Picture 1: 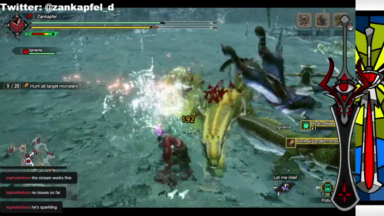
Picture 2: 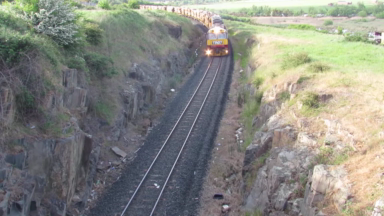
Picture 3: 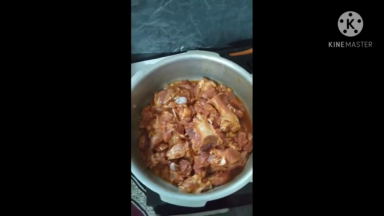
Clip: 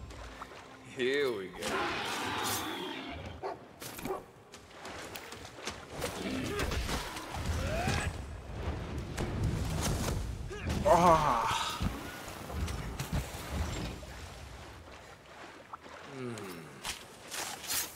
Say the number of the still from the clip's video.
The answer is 1